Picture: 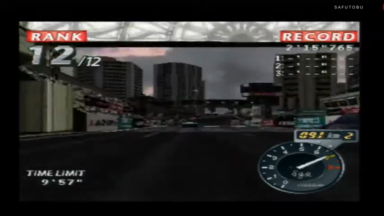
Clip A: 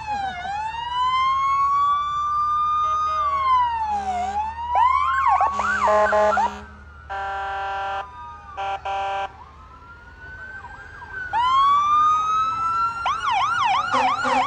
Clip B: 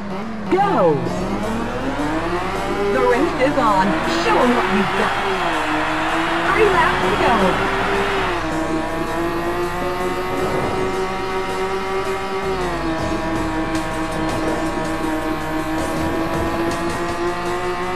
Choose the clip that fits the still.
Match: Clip B